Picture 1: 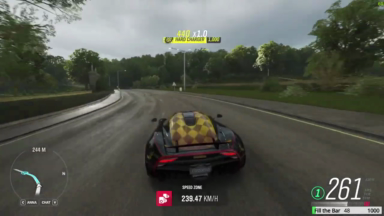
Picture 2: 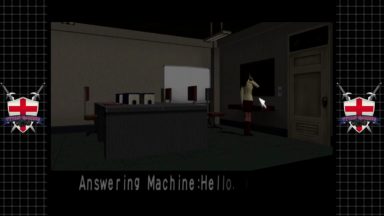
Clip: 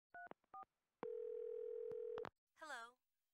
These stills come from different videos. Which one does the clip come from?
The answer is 2